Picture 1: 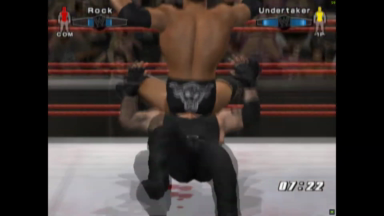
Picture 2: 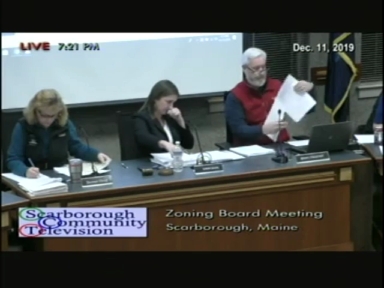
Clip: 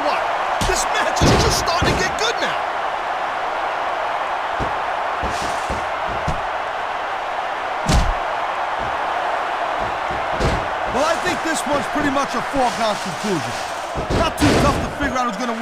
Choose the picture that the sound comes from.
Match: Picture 1